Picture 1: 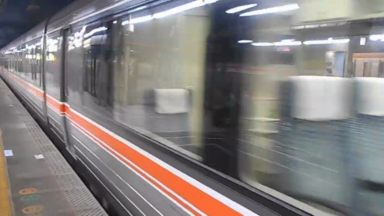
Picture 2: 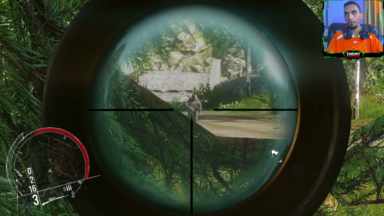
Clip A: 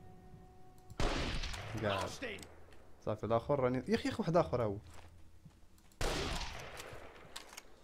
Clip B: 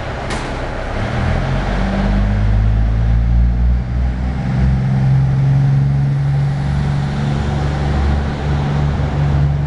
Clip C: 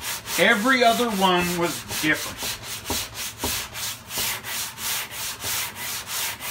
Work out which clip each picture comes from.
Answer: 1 B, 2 A